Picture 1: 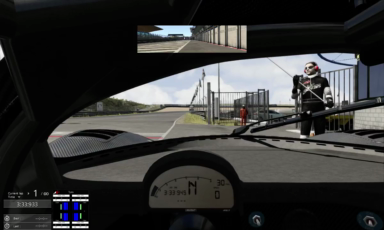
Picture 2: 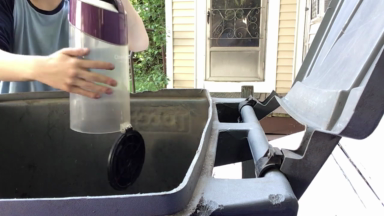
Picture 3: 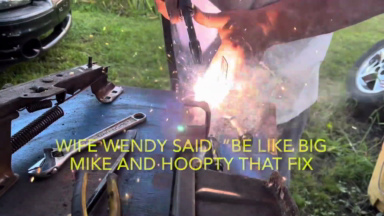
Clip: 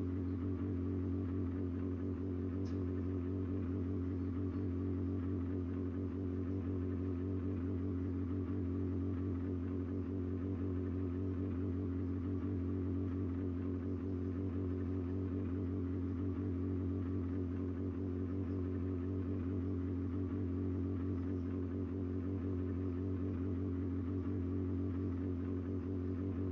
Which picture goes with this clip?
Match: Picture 1